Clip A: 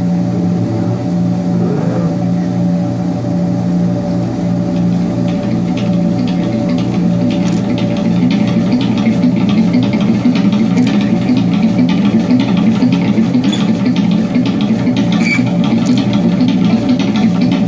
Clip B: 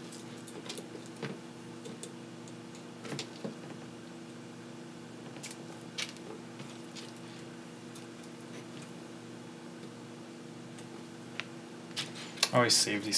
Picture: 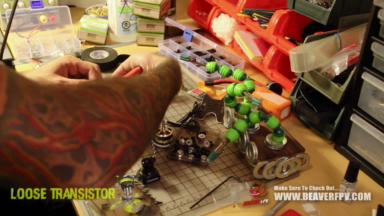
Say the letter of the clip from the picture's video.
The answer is B